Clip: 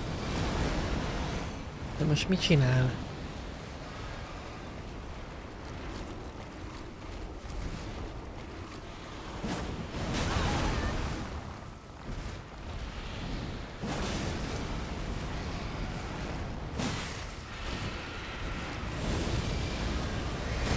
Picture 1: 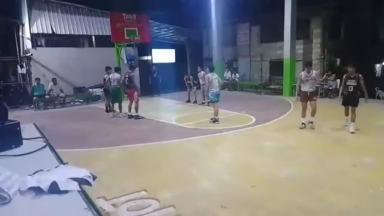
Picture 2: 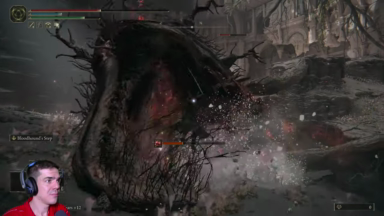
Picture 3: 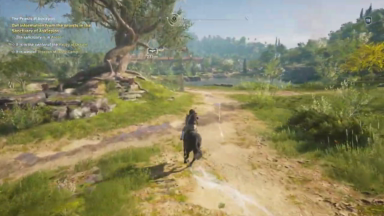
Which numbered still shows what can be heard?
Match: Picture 2